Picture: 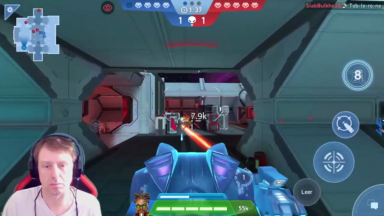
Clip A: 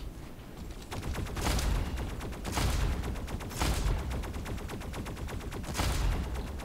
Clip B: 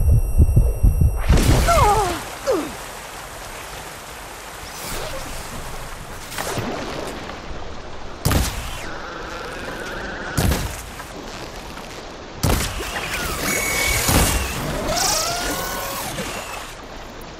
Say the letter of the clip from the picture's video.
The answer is A